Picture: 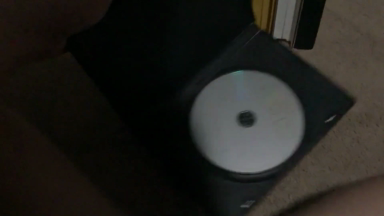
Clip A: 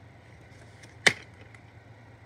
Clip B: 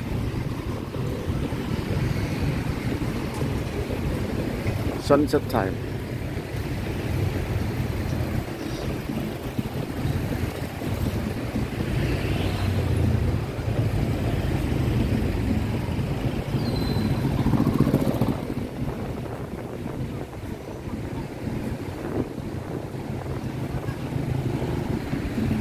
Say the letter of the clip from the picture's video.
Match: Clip A